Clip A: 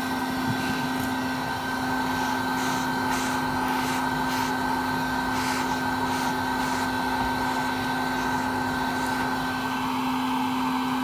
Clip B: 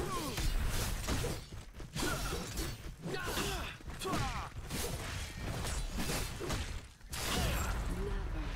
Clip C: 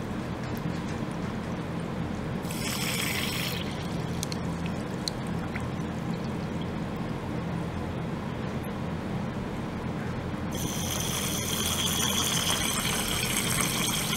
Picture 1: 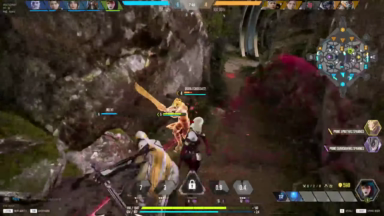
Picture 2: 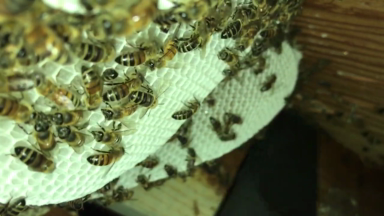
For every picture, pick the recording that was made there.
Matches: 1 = B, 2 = A